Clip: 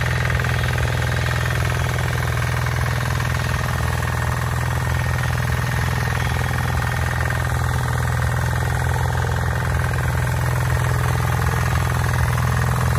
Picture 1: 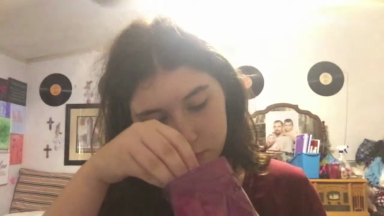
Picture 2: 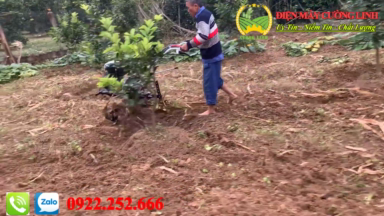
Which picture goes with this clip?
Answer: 2